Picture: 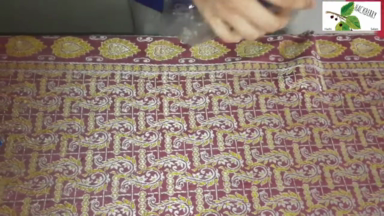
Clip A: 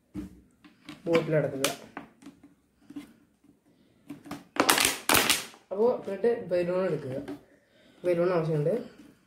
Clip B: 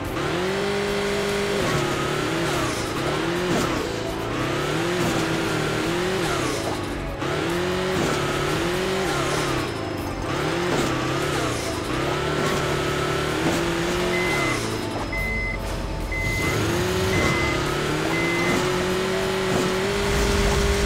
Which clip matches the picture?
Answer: A